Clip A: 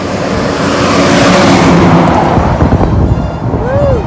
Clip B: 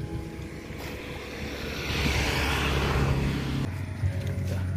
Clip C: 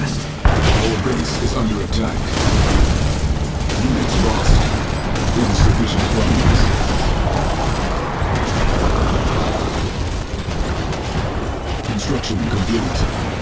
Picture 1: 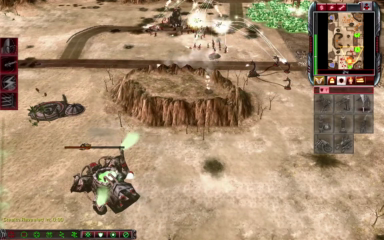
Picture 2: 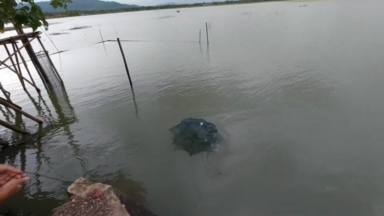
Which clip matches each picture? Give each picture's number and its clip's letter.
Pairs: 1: C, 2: B